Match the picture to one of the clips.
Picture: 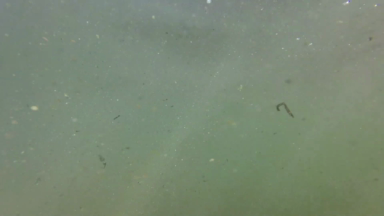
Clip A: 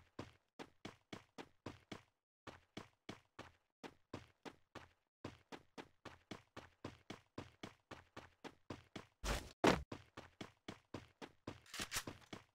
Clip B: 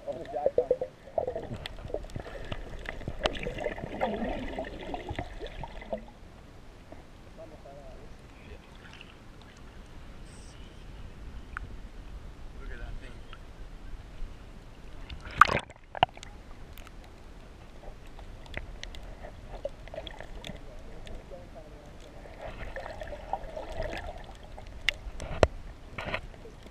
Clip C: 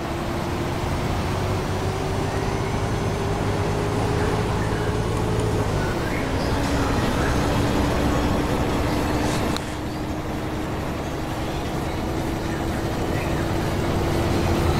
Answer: B